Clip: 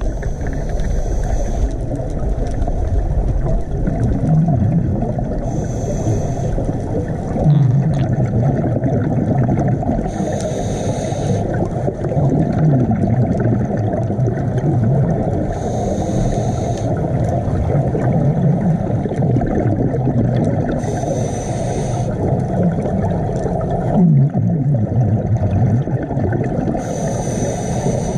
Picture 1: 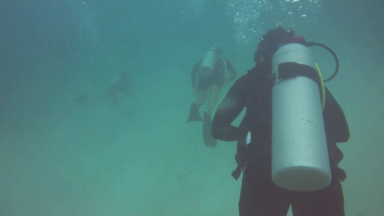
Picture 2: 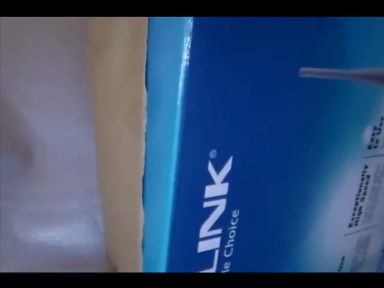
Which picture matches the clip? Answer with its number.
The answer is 1